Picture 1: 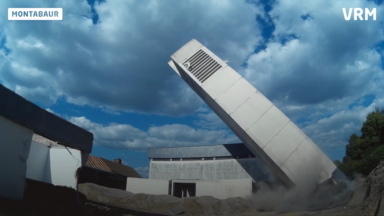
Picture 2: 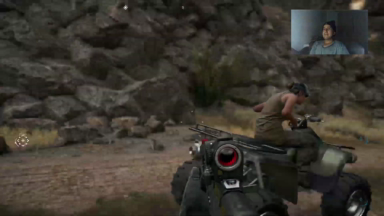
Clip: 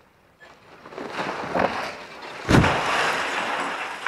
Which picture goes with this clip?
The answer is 1